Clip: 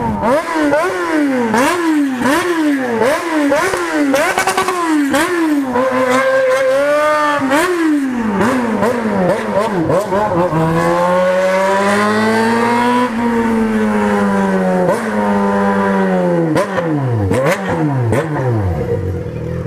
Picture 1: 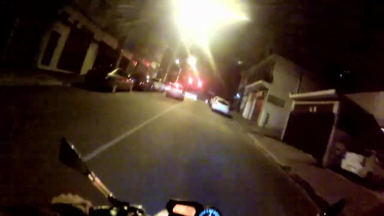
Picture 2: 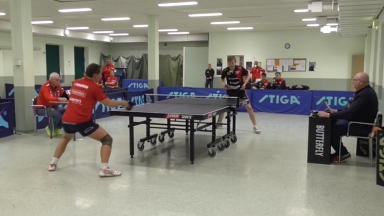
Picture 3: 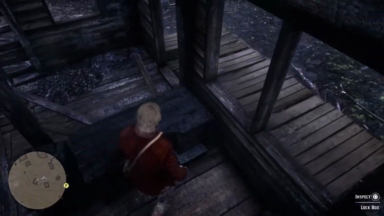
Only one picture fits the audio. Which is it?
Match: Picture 1